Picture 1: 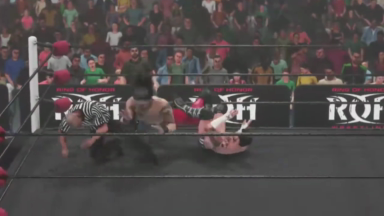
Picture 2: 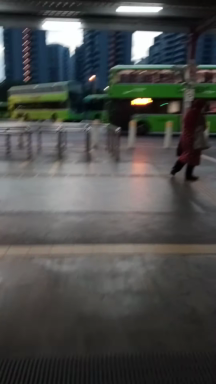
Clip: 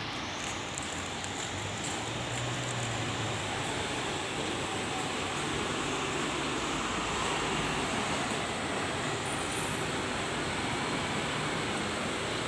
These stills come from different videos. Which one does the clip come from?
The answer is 2